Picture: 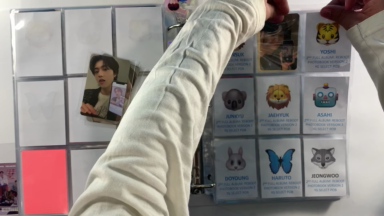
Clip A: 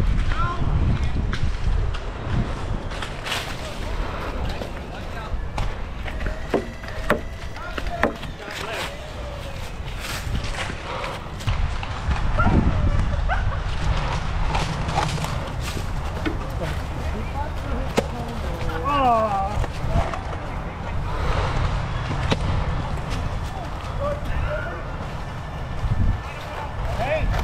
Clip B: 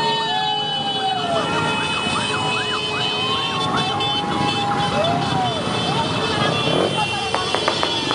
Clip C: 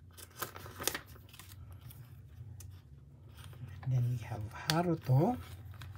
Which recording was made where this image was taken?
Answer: C